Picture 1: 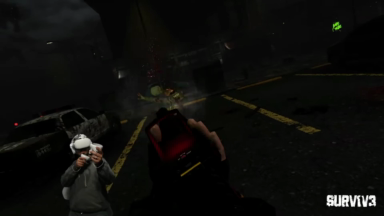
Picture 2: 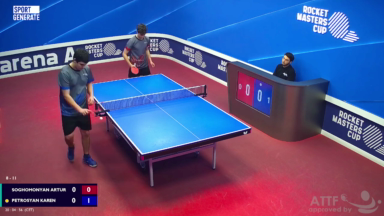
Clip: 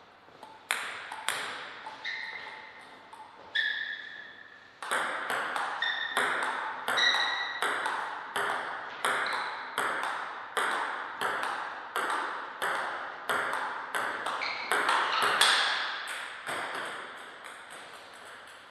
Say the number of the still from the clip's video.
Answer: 2